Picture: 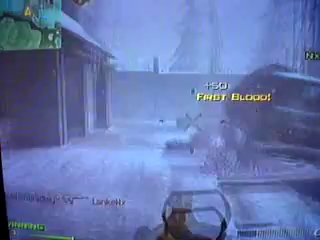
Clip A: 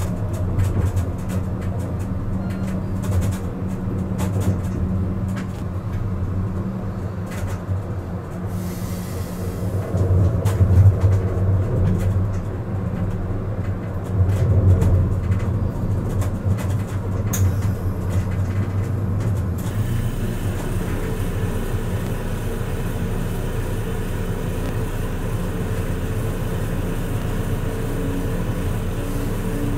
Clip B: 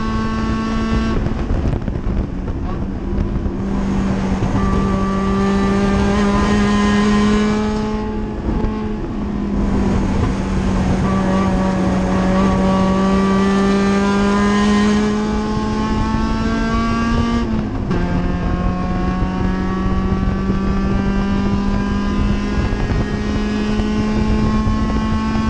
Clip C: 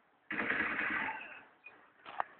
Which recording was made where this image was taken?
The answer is C